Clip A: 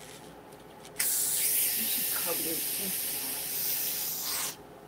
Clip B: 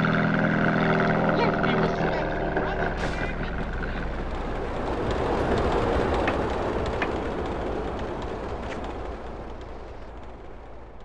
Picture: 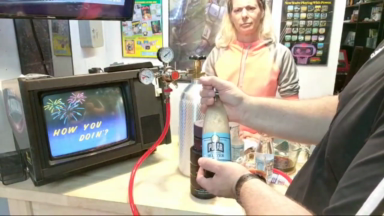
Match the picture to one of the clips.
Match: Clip A